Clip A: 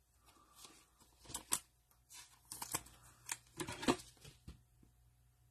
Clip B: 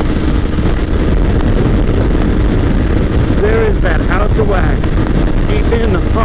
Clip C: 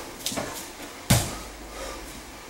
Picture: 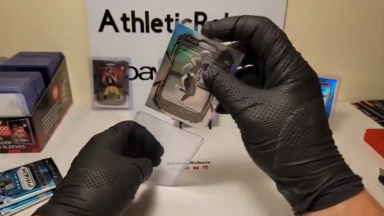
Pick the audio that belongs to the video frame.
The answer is A